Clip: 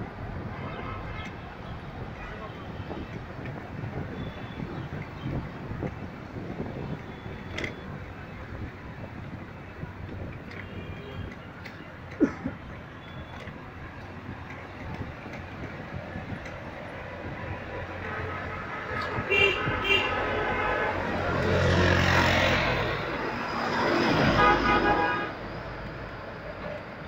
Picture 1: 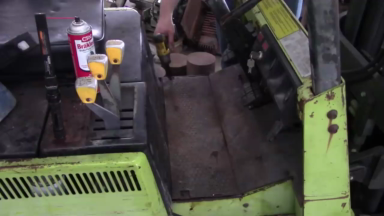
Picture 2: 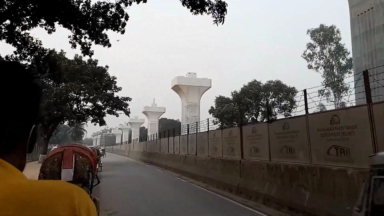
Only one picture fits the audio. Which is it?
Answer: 2